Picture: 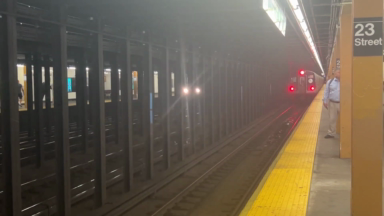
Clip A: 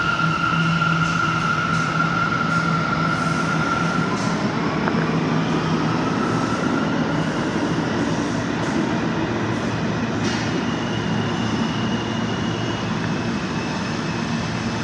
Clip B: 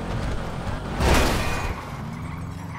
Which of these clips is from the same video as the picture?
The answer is A